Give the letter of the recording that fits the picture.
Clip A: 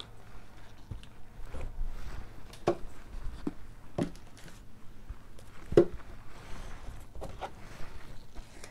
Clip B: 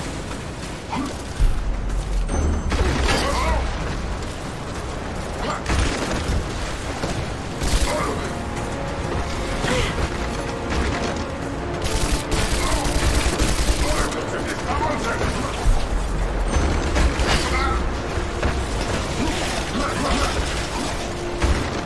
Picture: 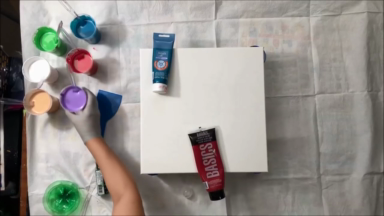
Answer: A